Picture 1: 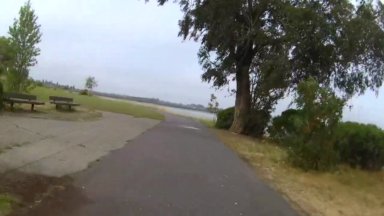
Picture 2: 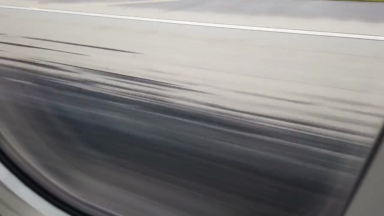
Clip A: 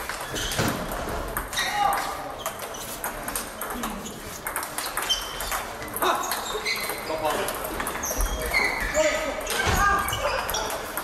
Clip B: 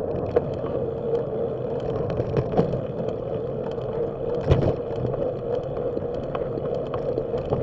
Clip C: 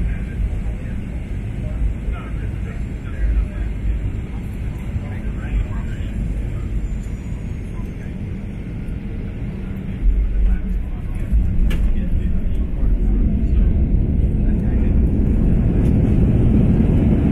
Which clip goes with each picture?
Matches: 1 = B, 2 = C